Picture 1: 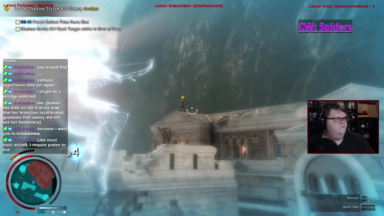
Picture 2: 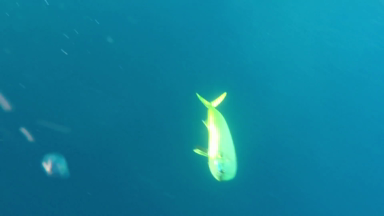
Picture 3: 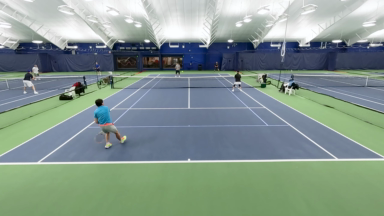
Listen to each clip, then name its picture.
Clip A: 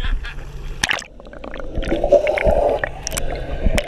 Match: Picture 2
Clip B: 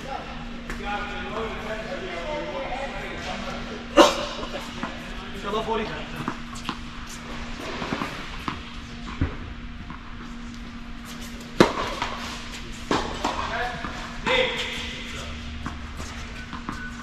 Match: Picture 3